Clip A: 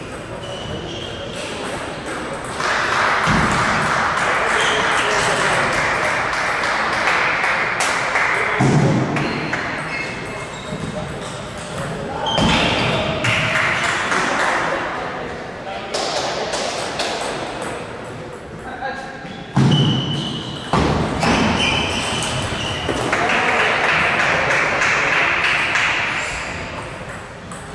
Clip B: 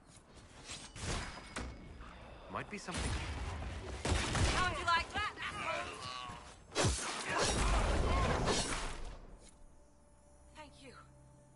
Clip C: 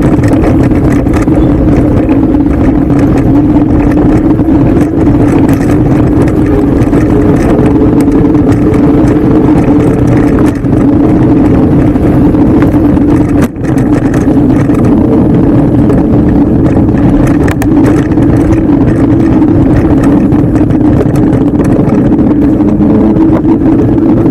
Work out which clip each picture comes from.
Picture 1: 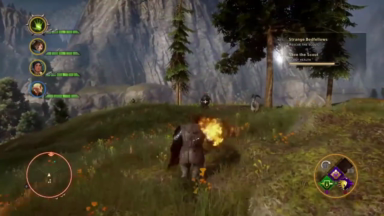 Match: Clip B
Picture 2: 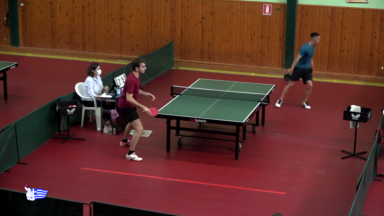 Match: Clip A